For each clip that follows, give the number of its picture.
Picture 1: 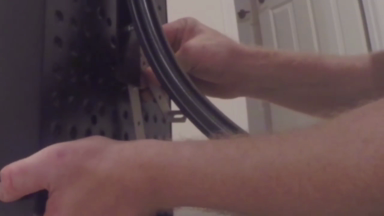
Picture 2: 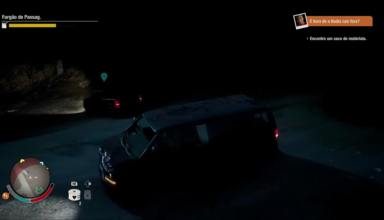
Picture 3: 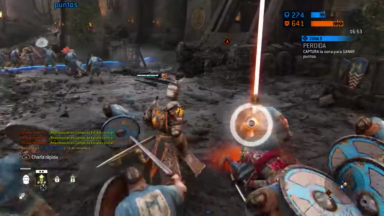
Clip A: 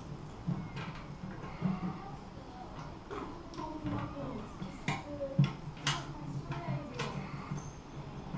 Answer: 1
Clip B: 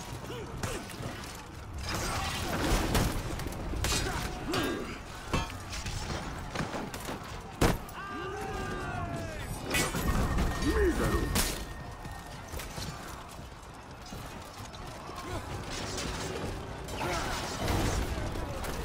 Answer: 3